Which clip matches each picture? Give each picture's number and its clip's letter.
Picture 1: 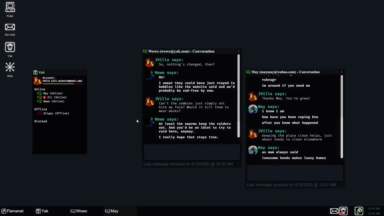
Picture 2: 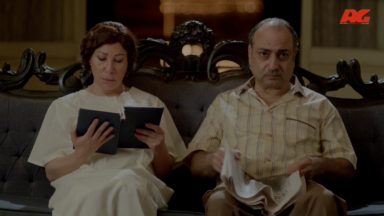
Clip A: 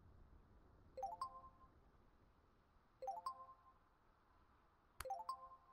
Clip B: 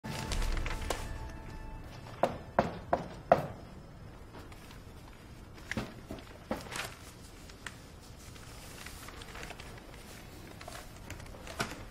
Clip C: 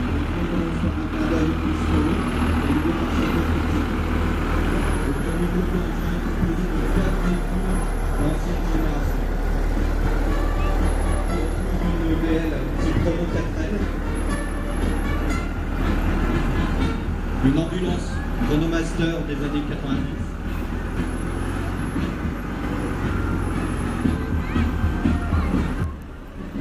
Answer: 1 A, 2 B